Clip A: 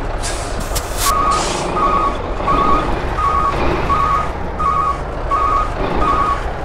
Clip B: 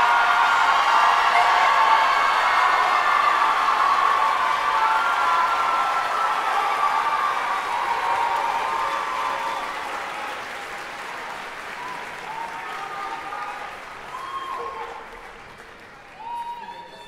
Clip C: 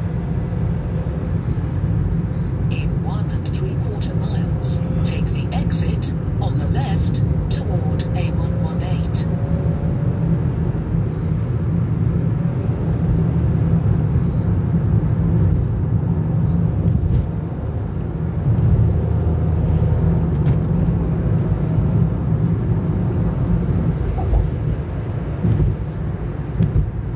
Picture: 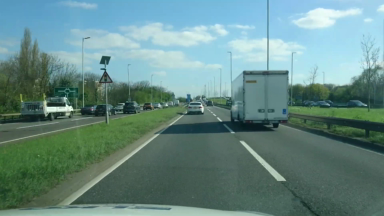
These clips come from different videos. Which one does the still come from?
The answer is C